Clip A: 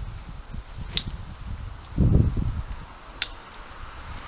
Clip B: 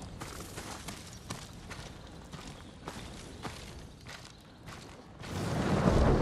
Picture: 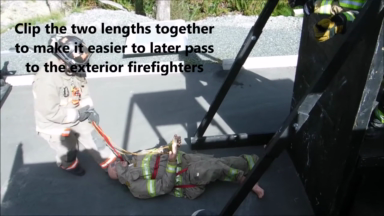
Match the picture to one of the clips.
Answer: A